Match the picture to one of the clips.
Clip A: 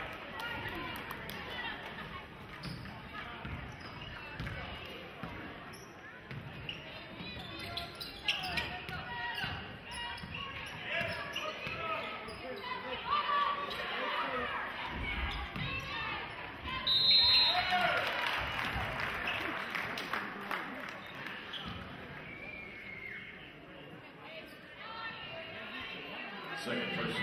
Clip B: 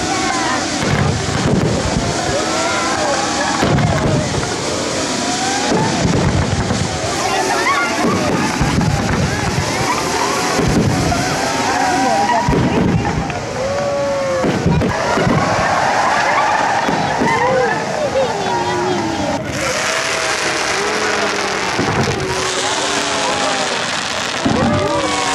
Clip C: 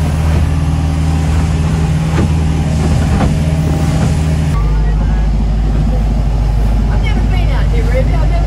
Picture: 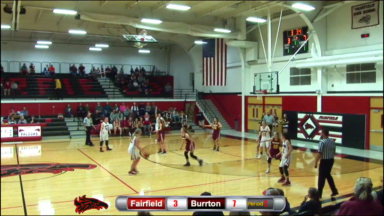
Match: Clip A